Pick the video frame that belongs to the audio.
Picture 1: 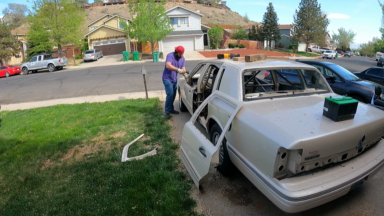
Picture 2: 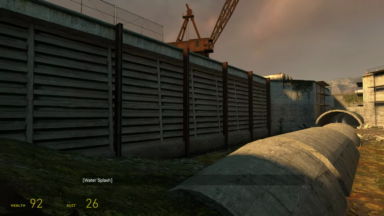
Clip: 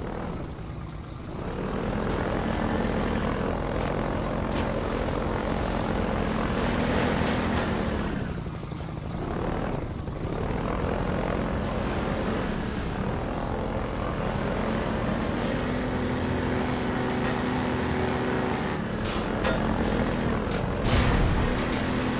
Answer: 2